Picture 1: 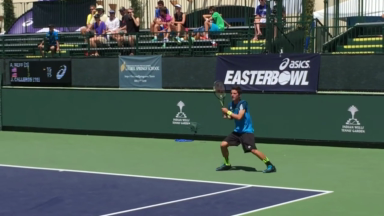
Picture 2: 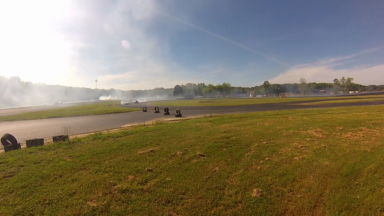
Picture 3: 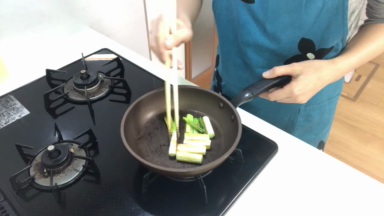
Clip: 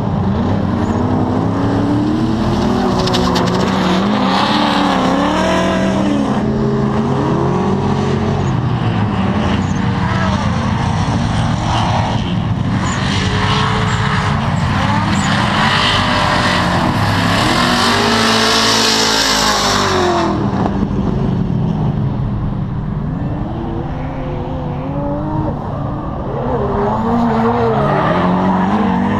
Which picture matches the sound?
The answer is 2